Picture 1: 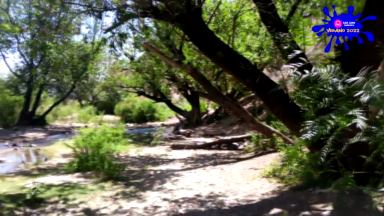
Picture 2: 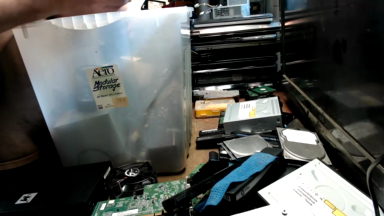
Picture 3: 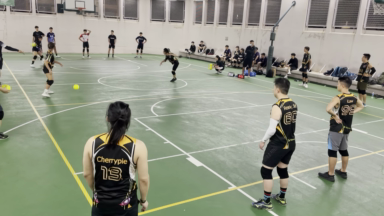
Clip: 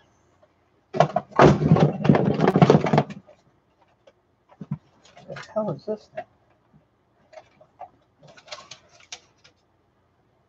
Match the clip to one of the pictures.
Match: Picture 2